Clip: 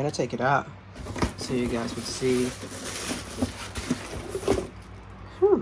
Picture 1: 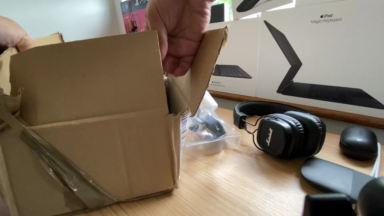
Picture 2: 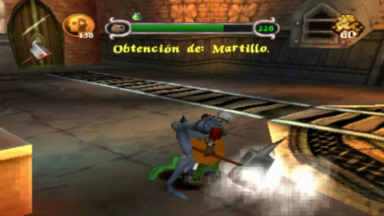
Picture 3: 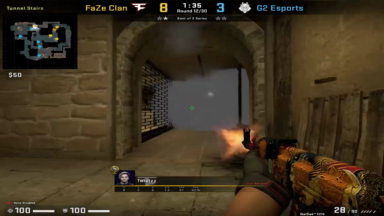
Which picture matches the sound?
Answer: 1